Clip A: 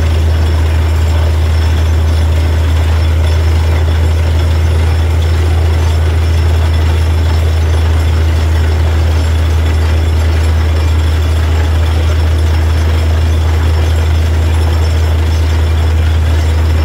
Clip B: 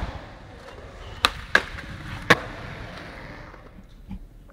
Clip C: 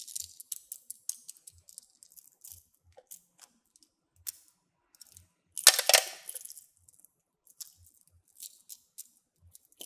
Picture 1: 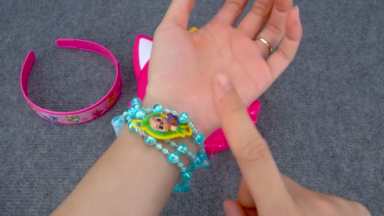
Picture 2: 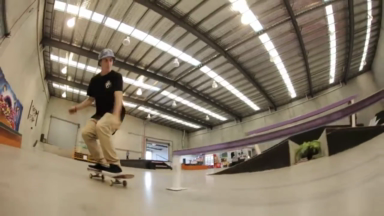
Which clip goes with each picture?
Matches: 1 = C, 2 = B